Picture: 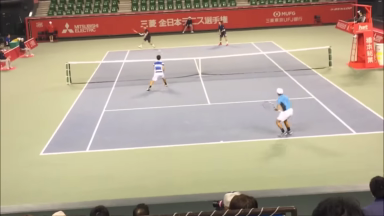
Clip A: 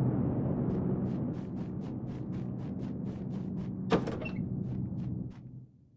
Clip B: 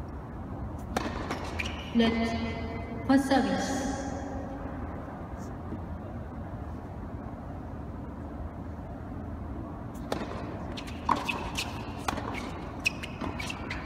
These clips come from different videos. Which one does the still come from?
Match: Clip B